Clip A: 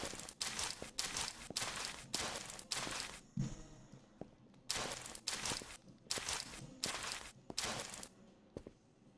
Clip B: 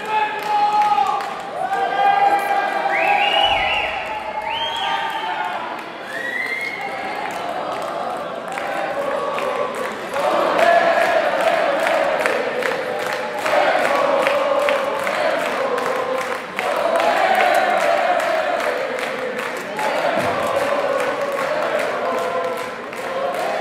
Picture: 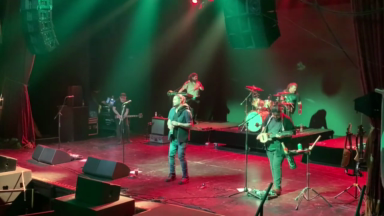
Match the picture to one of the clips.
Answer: B